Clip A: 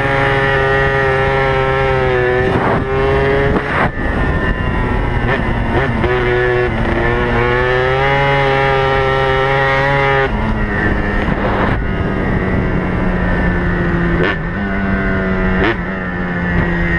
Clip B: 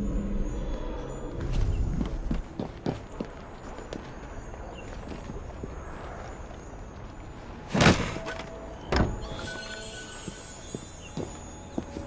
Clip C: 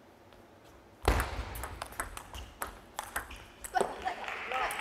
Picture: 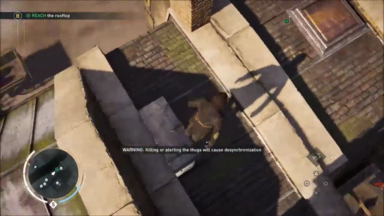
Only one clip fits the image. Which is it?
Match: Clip B